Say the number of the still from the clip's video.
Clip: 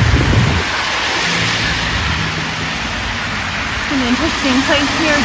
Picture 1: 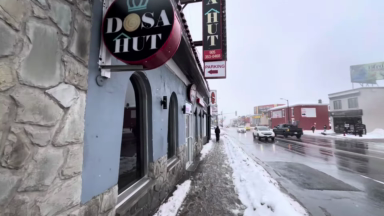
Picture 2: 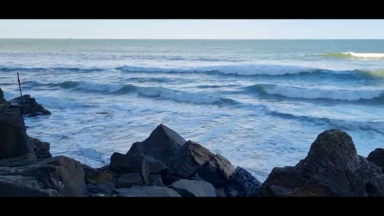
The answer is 1